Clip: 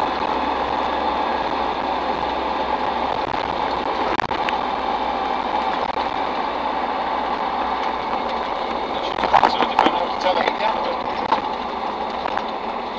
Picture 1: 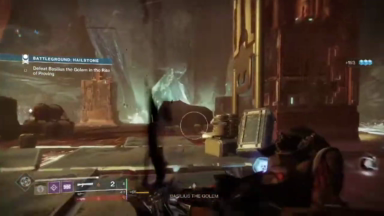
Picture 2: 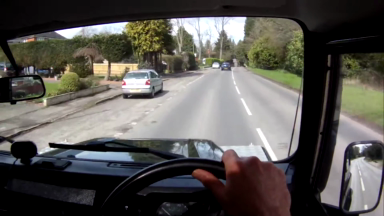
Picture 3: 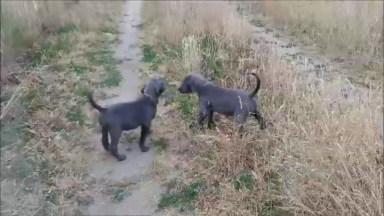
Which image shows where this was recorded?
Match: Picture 2